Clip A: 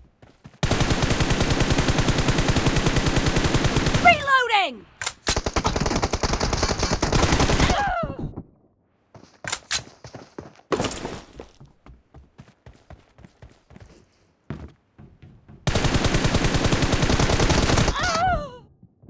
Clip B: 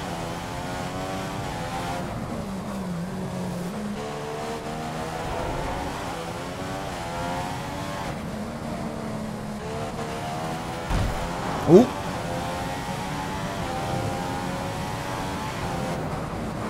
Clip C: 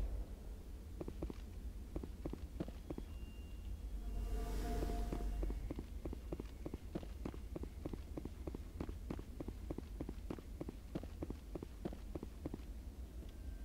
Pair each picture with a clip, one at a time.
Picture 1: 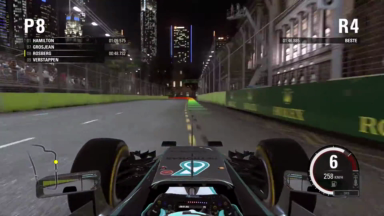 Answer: B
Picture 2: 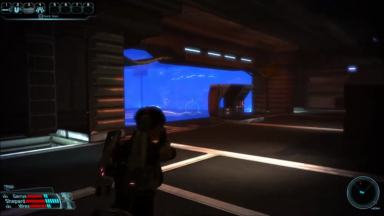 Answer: C